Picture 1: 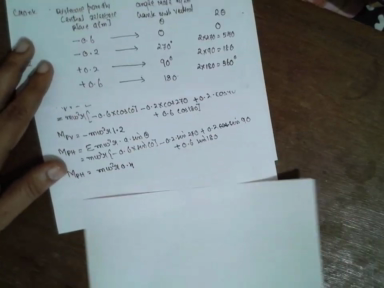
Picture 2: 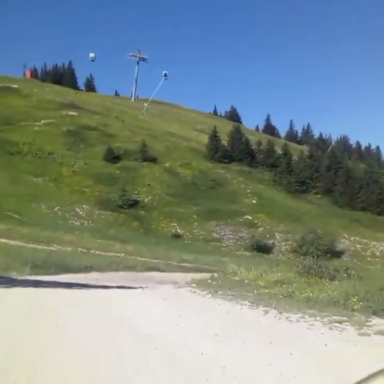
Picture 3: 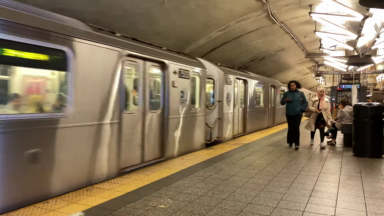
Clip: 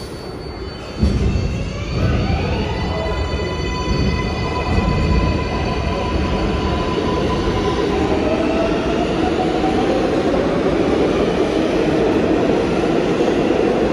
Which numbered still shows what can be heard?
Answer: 3